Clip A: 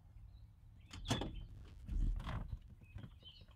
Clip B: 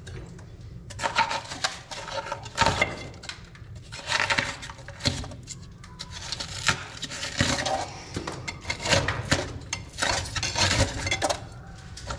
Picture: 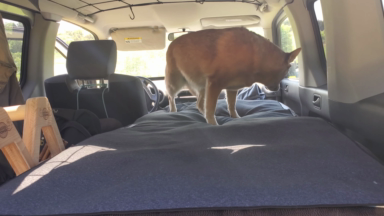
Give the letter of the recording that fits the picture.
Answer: A